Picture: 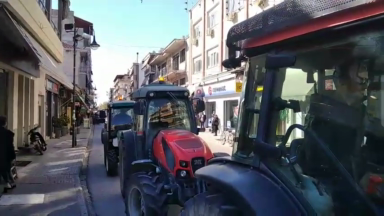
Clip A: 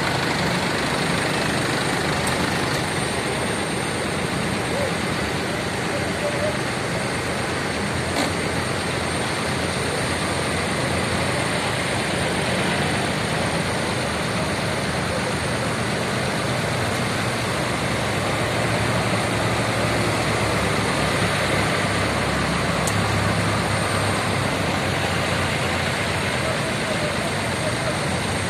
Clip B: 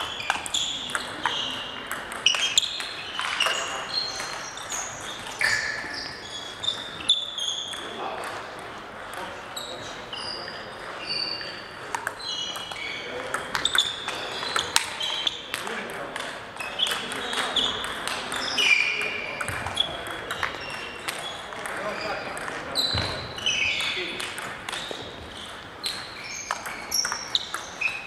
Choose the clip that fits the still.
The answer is A